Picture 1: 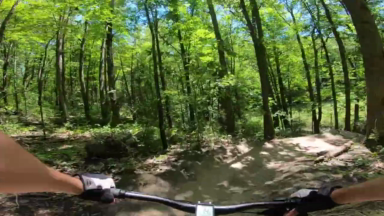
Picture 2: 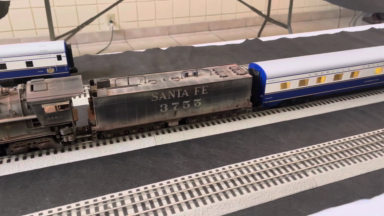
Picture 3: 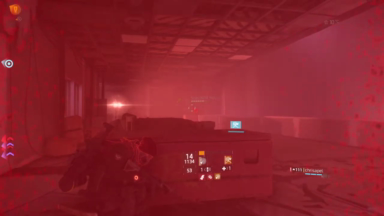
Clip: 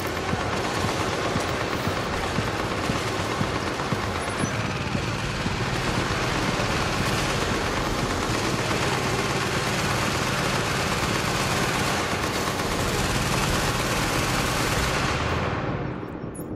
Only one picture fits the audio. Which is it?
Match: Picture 3